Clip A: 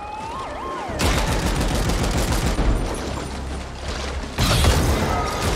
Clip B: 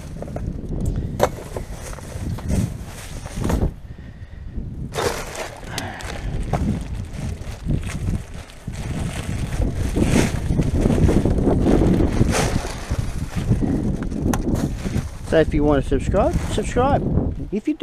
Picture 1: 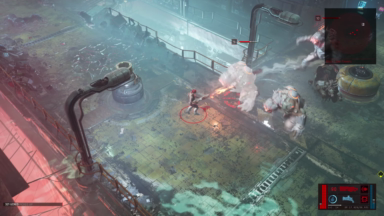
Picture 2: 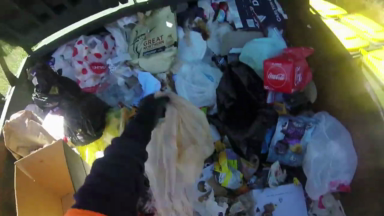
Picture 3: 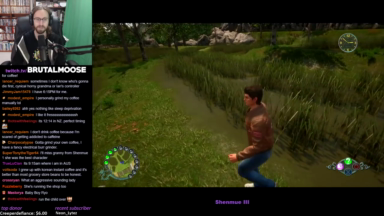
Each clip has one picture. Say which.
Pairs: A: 1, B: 2